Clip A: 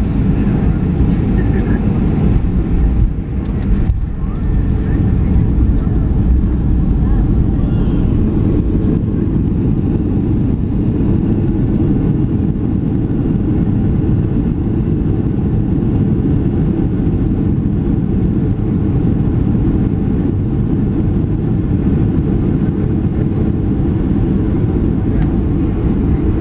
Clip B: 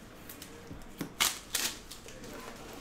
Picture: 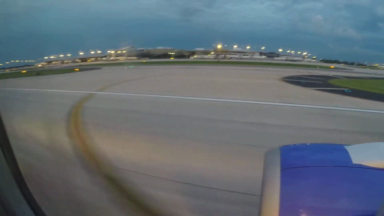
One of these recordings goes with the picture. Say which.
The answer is A